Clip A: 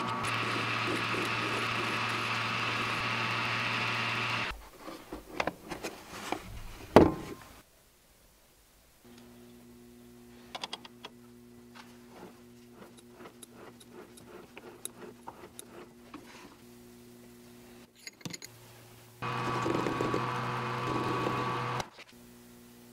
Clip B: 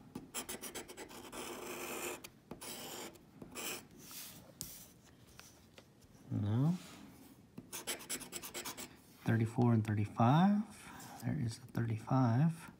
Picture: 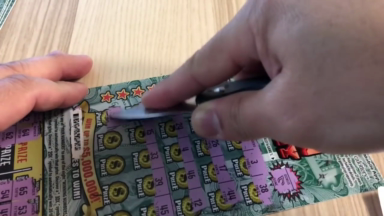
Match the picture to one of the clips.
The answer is B